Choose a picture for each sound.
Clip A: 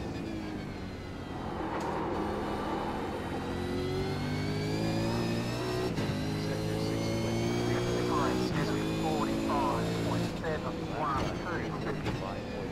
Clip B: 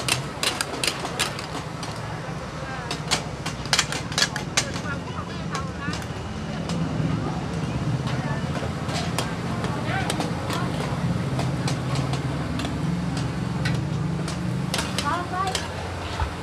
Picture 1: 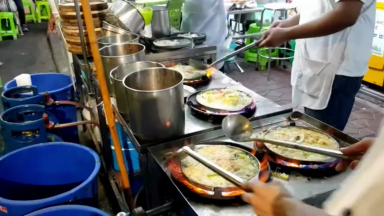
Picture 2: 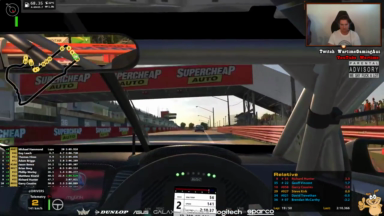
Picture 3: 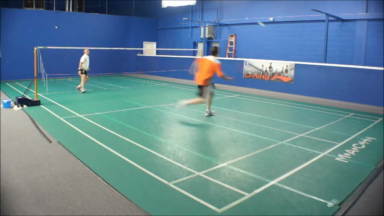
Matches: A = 2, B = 1